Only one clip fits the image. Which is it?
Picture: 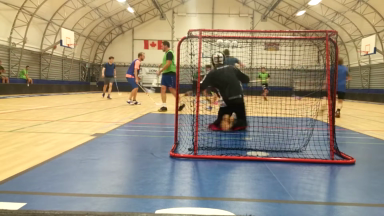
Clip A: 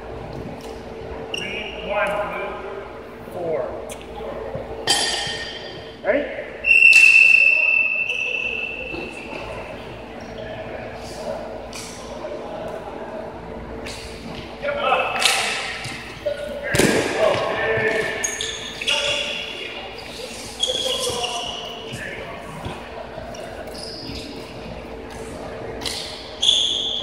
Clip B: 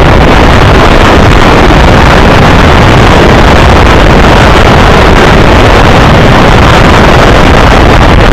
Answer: A